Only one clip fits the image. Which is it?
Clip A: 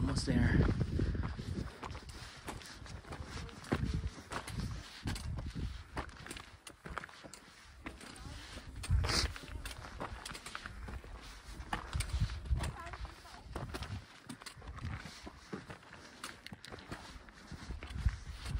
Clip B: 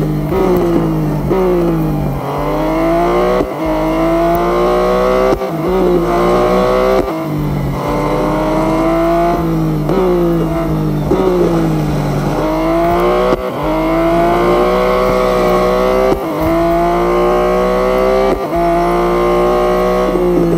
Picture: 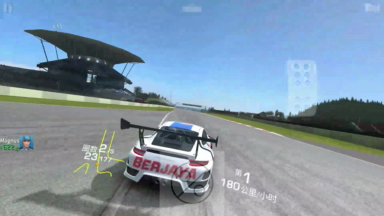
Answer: B